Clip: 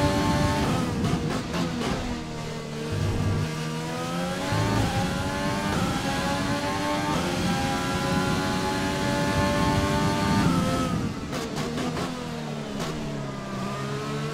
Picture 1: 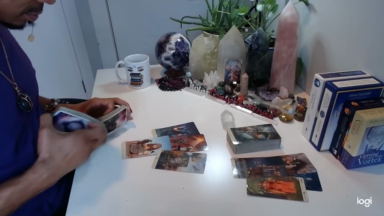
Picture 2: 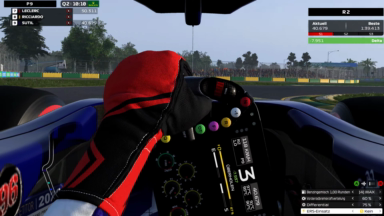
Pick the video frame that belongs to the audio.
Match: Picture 2